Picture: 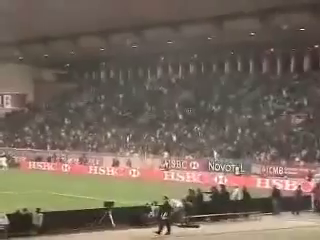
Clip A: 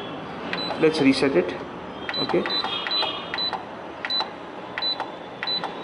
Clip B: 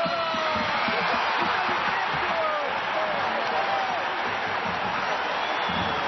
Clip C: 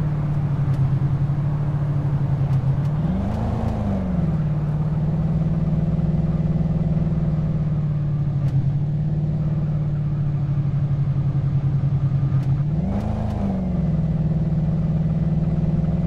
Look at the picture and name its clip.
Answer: B